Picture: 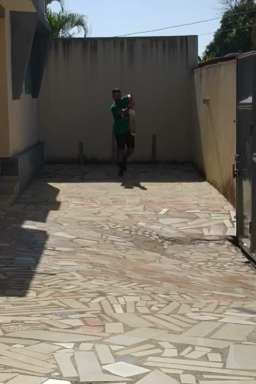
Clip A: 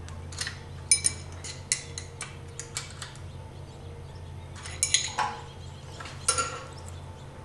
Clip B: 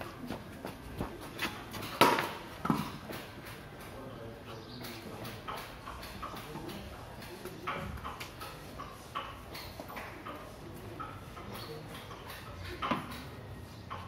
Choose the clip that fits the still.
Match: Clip B